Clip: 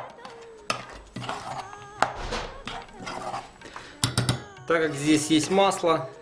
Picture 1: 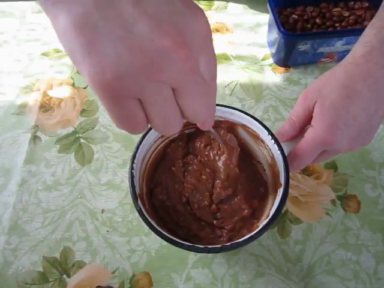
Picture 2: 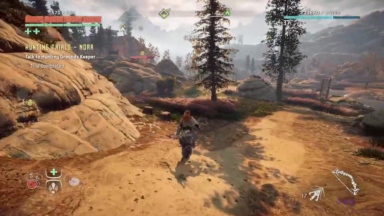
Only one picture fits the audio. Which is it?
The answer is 1